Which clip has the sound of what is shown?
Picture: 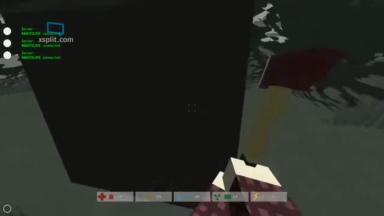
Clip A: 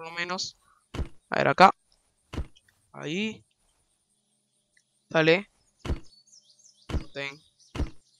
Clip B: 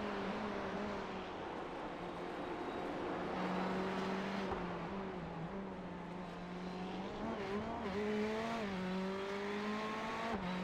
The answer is A